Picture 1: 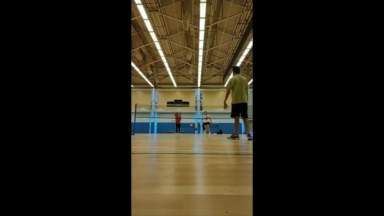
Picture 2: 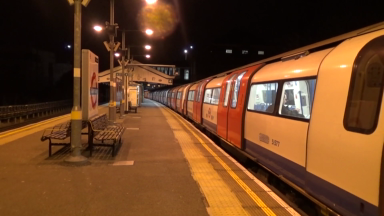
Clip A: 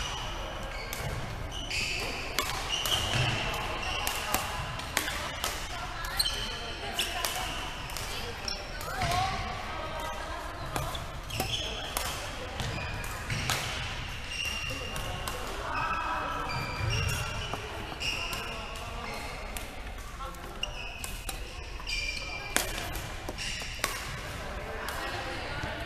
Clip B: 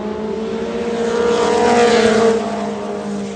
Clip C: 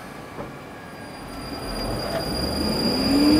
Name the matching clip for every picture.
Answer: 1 A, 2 C